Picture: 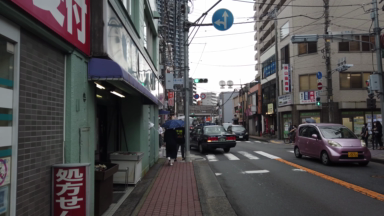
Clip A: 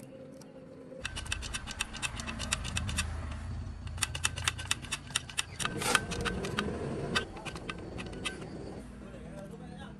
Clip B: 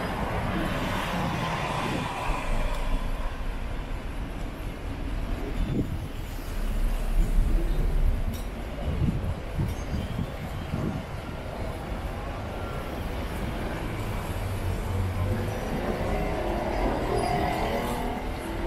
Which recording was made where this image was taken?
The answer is B